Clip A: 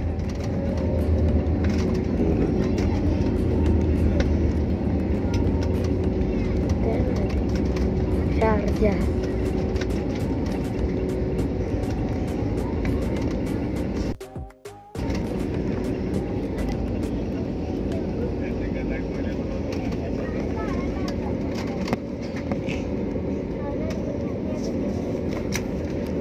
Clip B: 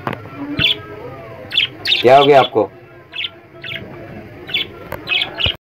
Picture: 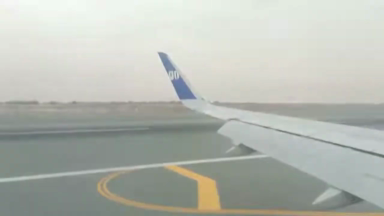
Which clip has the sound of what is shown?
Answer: A